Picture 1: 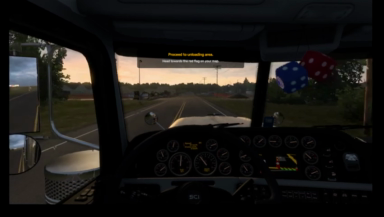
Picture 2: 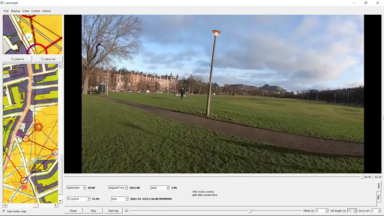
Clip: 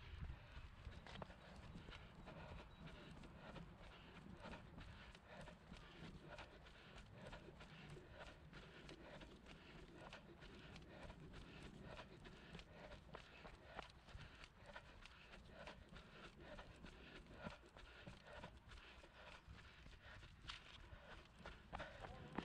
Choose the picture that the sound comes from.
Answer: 2